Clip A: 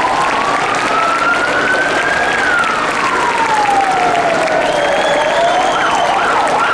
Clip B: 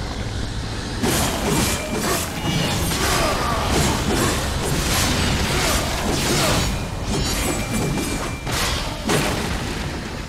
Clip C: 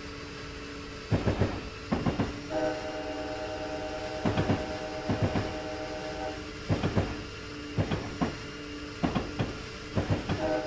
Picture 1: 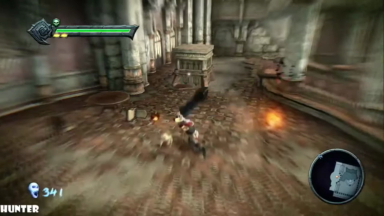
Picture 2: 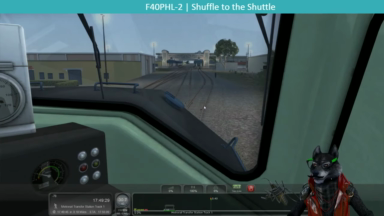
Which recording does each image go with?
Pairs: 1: B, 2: C